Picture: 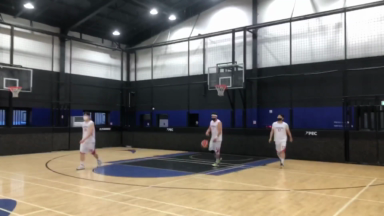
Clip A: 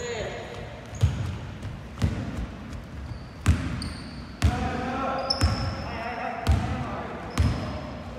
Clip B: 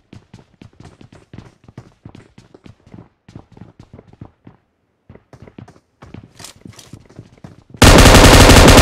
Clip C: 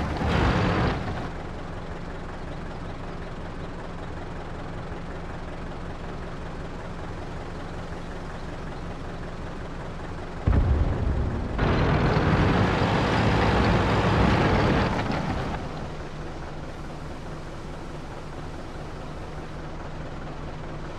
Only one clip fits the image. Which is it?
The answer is A